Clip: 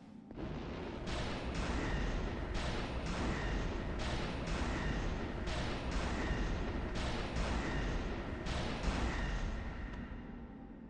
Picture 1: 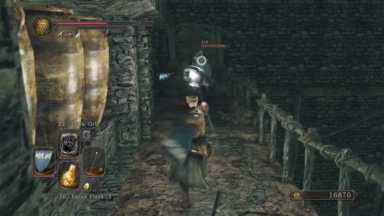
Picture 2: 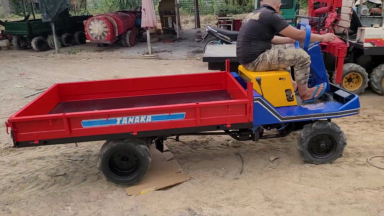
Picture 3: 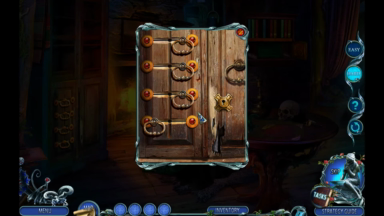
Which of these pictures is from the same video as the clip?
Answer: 1